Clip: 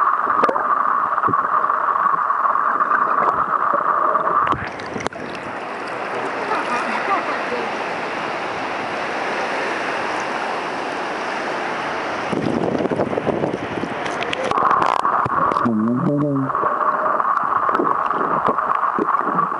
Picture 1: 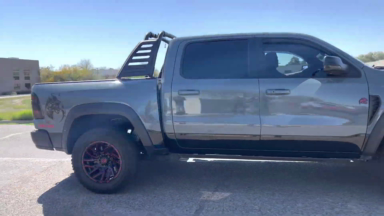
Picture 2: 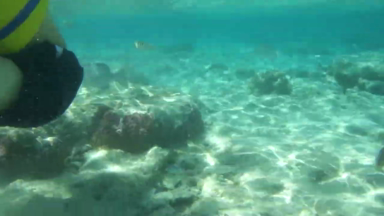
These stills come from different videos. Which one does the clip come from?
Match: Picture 2